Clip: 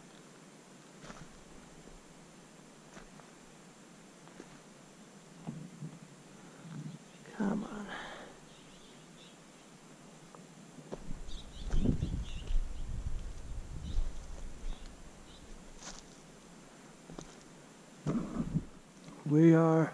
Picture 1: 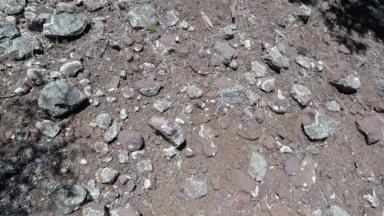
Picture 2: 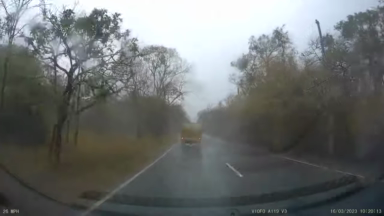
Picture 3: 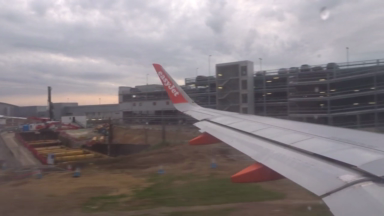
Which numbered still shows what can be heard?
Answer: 1